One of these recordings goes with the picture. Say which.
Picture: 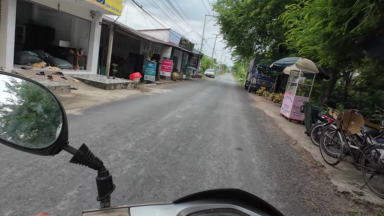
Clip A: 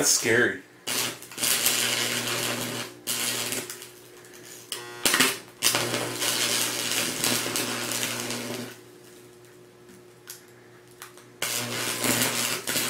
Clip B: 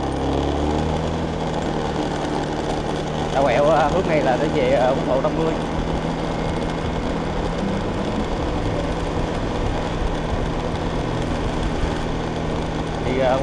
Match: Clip B